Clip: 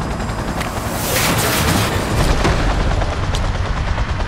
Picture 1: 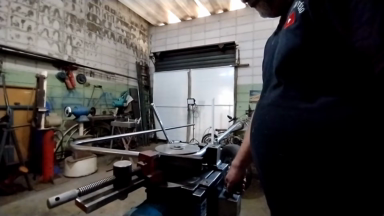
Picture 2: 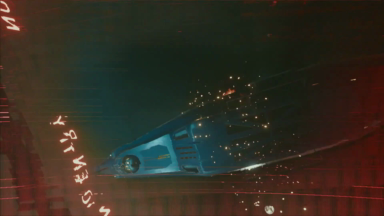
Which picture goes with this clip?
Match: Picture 2